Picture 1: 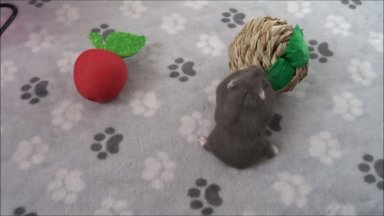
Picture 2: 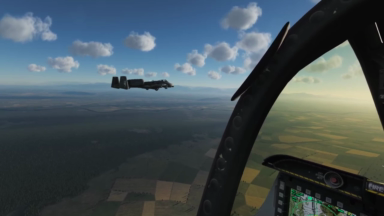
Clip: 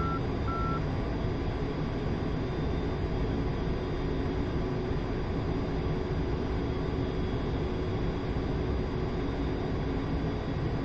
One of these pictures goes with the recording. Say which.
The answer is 2